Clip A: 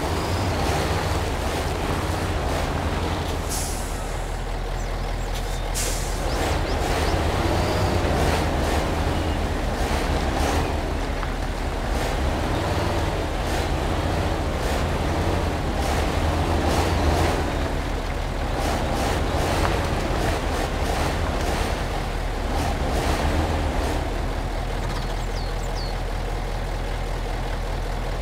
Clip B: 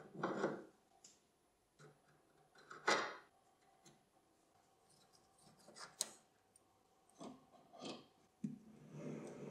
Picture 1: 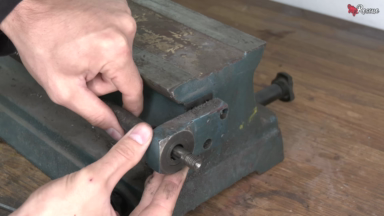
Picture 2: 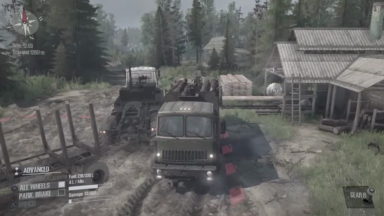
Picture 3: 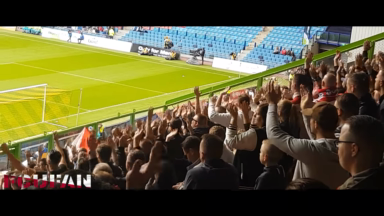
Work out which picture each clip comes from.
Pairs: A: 2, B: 1